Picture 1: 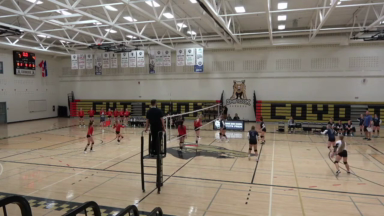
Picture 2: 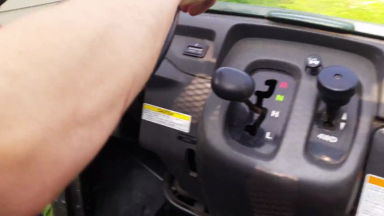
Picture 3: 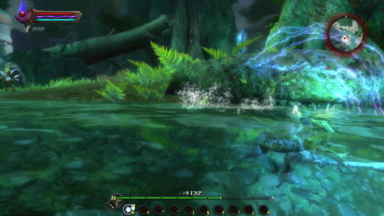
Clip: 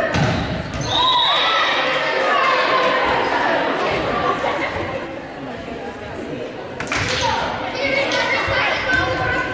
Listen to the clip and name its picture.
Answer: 1